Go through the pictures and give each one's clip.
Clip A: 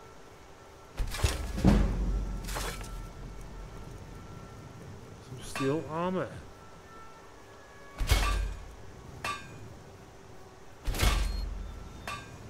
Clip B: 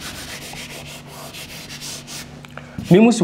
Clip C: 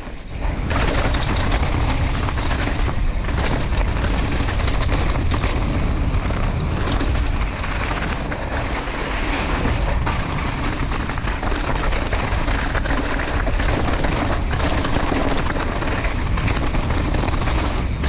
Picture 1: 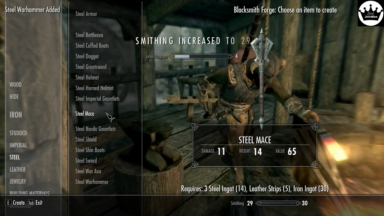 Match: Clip A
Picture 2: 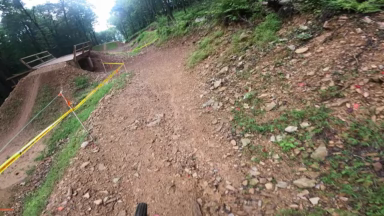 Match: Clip C